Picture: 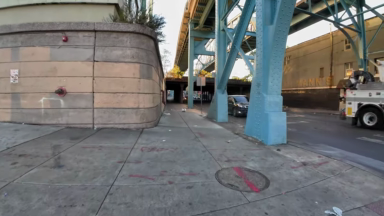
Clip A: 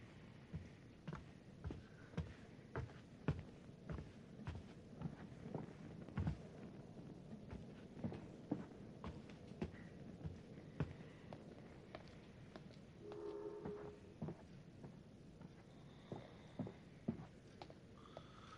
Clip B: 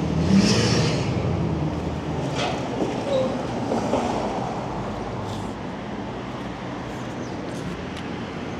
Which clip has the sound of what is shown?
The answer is B